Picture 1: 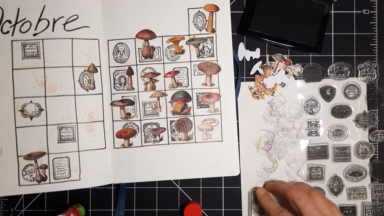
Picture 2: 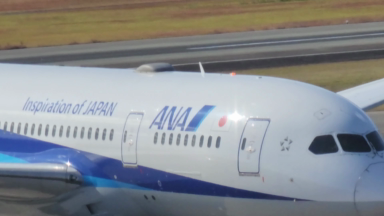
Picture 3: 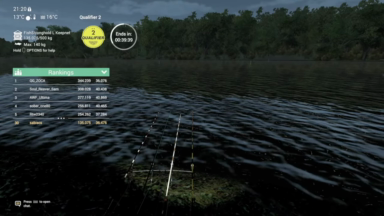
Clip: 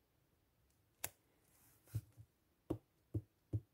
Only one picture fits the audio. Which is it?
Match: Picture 1